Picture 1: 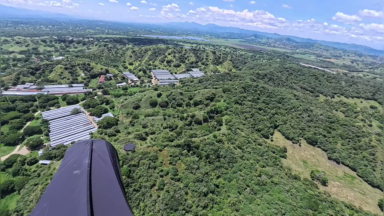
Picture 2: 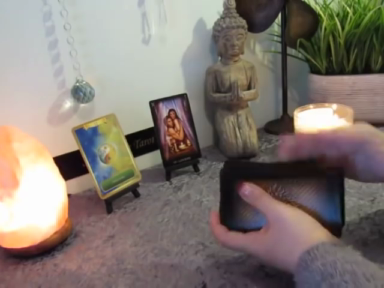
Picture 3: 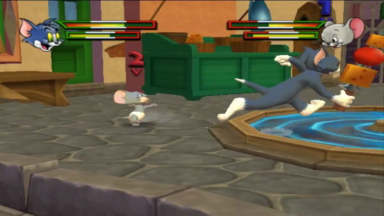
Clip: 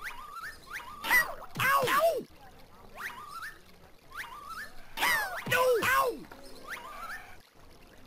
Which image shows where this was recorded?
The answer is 3